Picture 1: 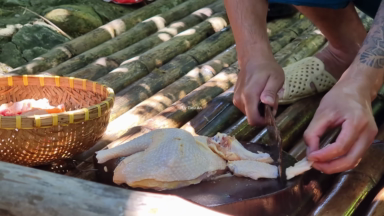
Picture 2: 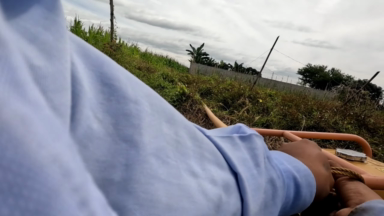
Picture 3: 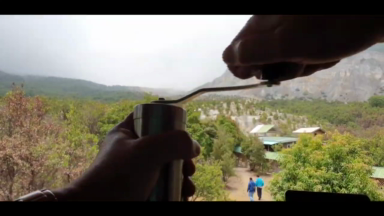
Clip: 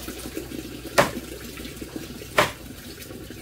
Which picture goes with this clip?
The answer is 1